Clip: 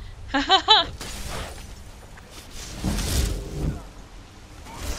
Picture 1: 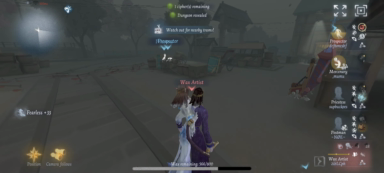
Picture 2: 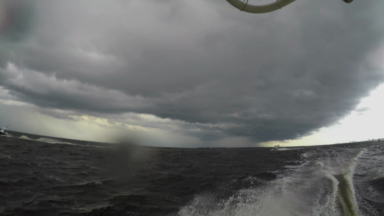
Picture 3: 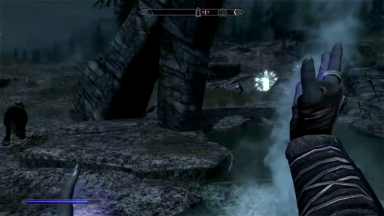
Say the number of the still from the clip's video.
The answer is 3